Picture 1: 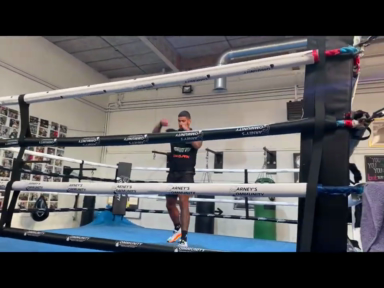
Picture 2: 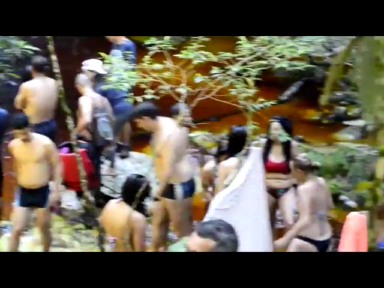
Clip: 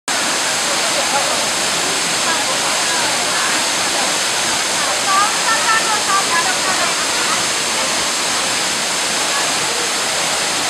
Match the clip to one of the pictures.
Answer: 2